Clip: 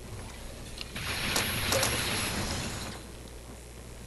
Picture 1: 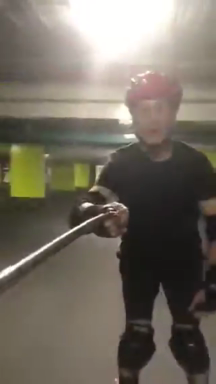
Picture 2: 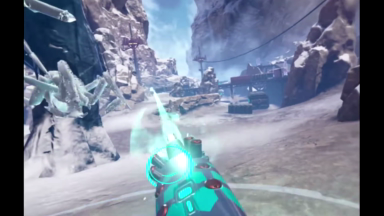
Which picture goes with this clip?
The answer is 2